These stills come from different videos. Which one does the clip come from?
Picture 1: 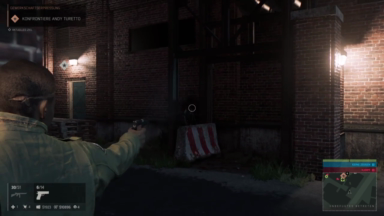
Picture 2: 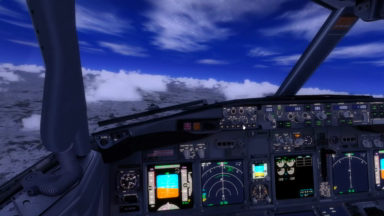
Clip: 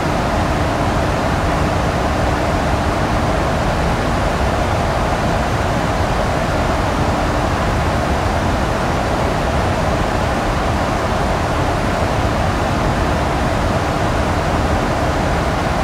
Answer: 2